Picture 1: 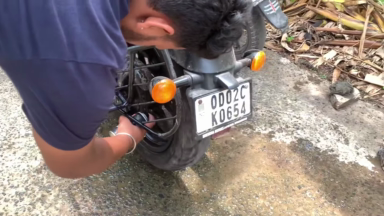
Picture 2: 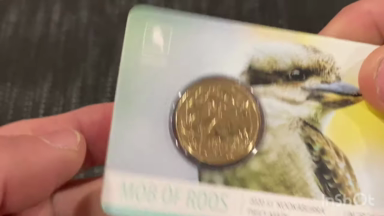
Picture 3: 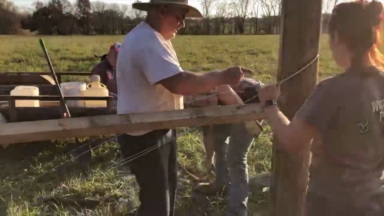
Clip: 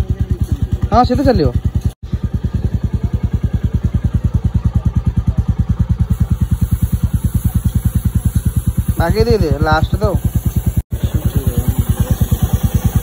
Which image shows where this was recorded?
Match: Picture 1